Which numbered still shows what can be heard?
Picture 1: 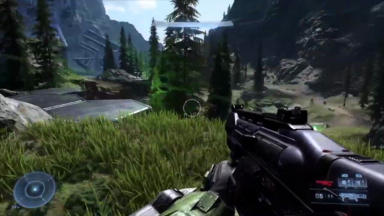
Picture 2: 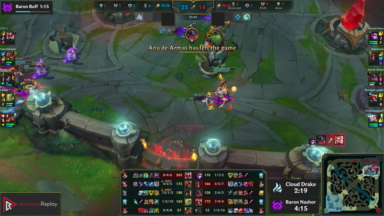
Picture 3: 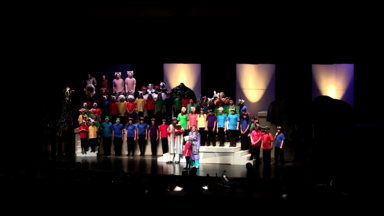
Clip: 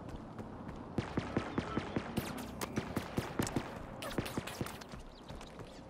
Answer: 1